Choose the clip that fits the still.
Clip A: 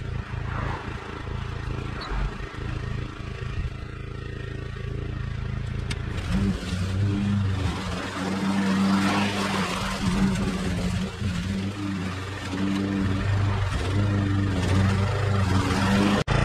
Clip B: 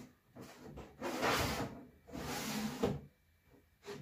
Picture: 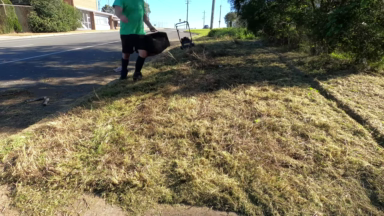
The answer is A